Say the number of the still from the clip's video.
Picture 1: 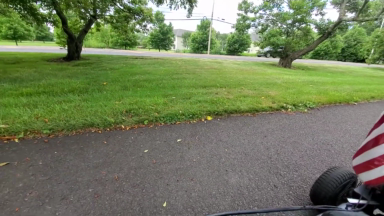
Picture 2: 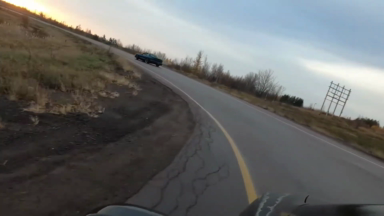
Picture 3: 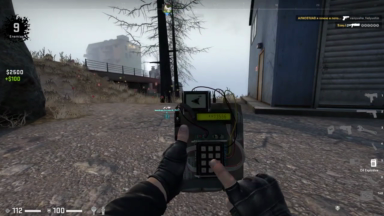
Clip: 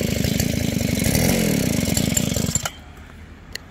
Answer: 1